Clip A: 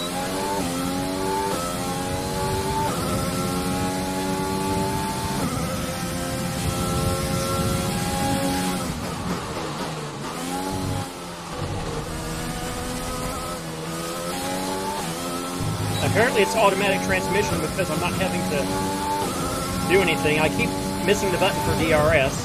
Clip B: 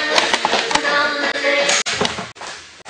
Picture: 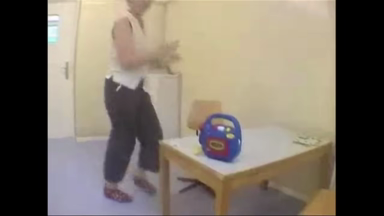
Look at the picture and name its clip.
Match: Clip B